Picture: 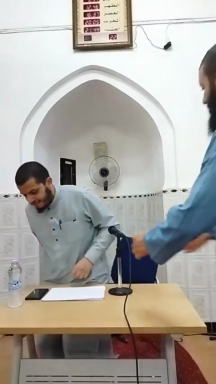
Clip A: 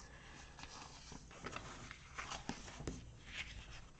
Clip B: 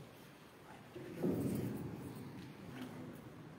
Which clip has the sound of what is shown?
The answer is B